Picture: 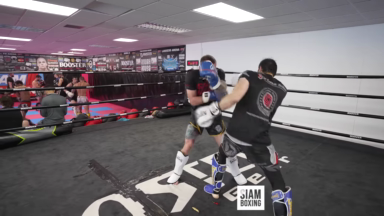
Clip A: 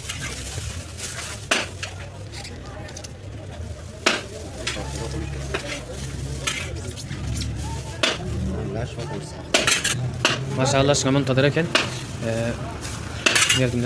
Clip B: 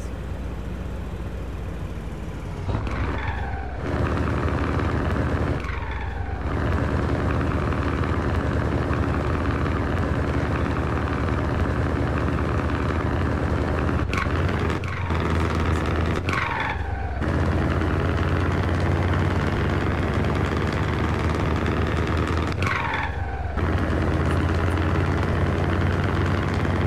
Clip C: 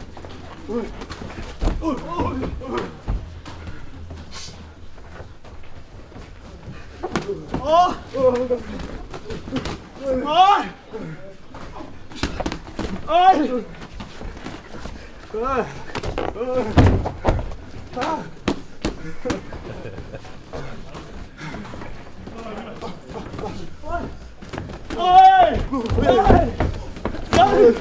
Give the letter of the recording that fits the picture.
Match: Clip C